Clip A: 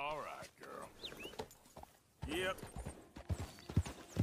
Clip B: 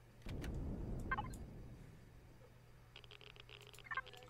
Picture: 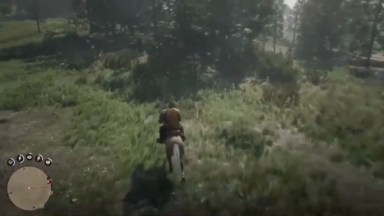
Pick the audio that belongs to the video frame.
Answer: A